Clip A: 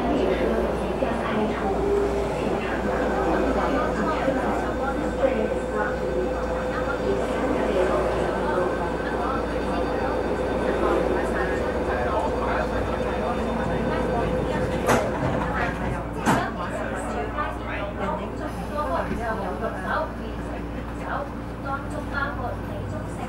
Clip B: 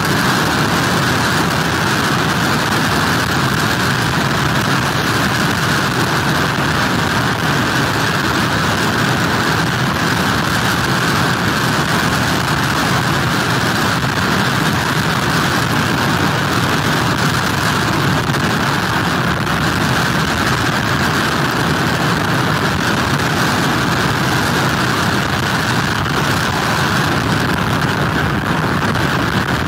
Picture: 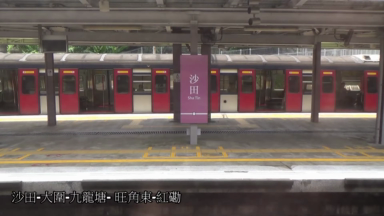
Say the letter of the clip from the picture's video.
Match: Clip A